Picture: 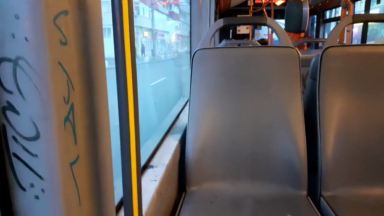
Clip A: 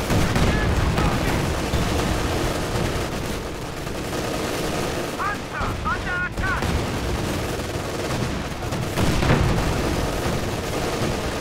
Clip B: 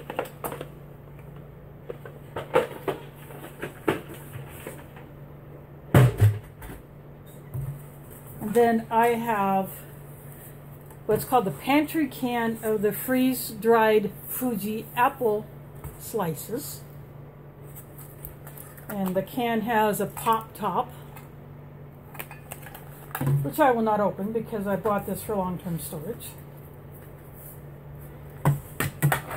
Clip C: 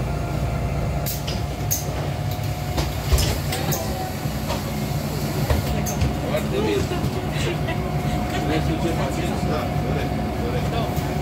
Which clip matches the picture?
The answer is C